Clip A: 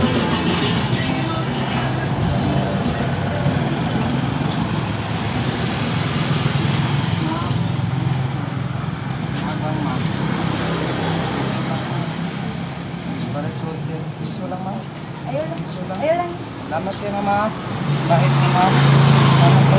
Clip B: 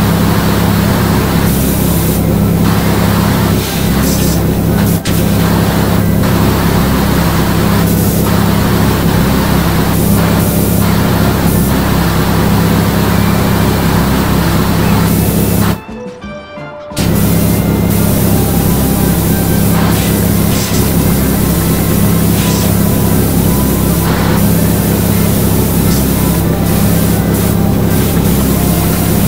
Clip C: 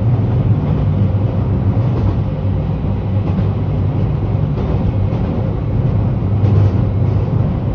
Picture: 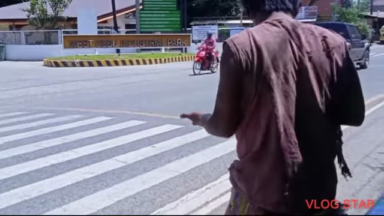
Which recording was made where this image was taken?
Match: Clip A